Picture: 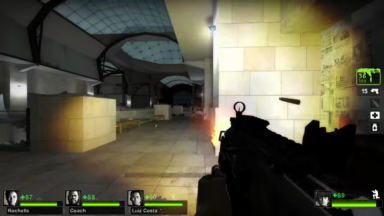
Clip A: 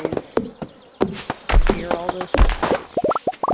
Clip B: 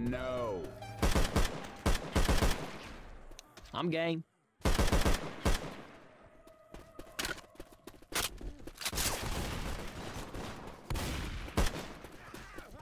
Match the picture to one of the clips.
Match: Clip B